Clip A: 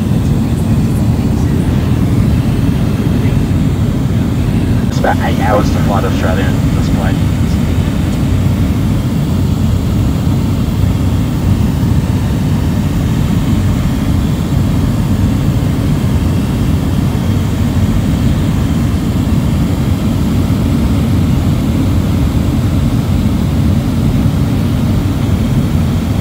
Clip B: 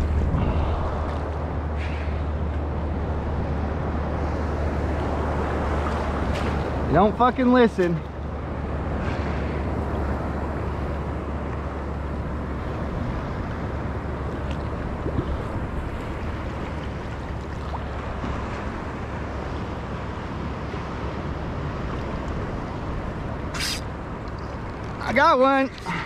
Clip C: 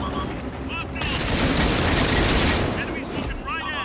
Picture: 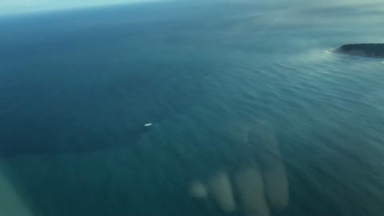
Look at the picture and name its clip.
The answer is A